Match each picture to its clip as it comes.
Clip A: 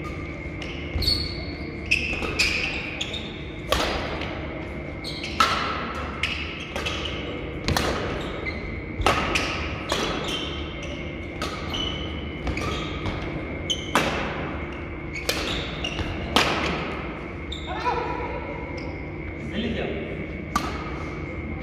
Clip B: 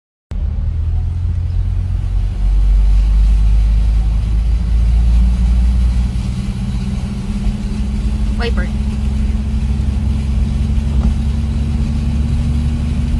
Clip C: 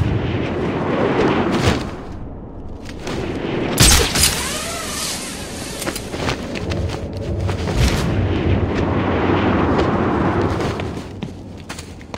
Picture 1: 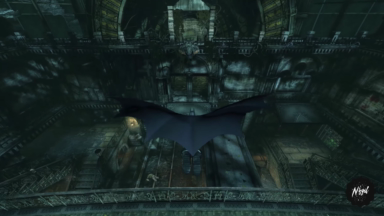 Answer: C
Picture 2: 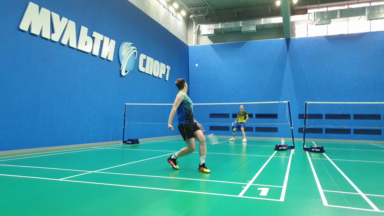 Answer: A